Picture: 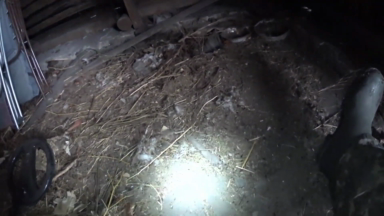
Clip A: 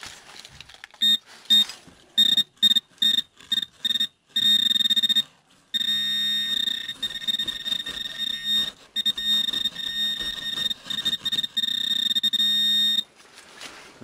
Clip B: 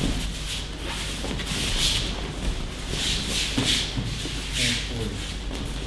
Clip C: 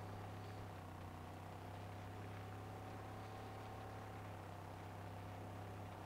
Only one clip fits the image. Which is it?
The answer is A